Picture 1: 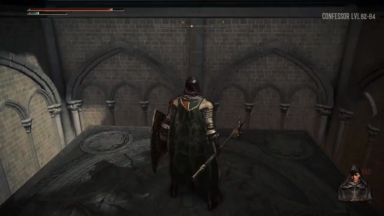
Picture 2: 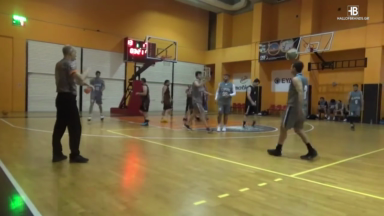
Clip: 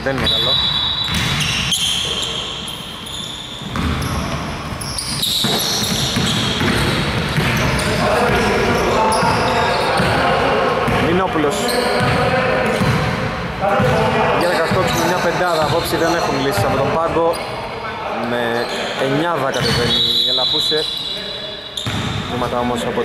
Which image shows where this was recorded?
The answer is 2